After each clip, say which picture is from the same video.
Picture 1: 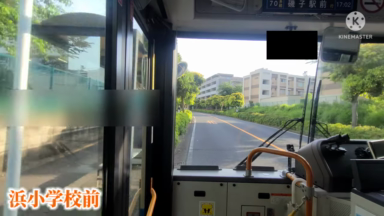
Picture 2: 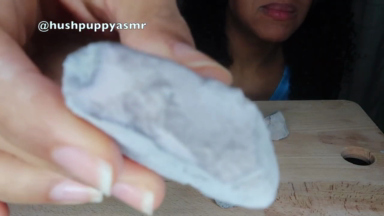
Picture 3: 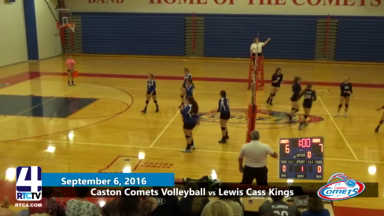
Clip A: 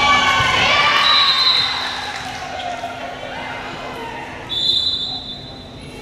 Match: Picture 3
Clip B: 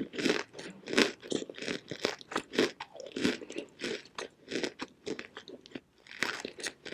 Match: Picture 2